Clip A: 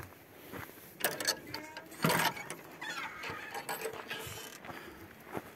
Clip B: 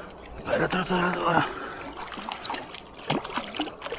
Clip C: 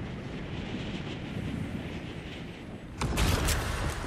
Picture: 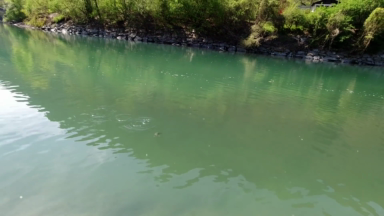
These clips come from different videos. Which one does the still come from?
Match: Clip B